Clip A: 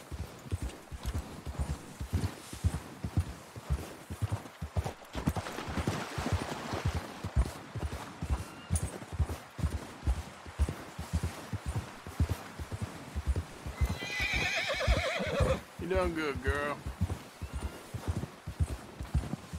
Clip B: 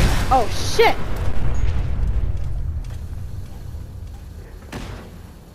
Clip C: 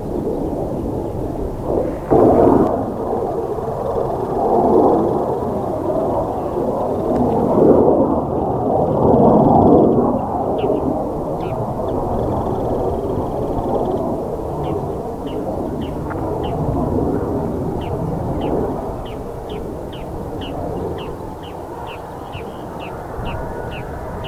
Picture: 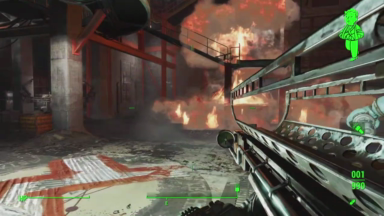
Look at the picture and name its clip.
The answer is B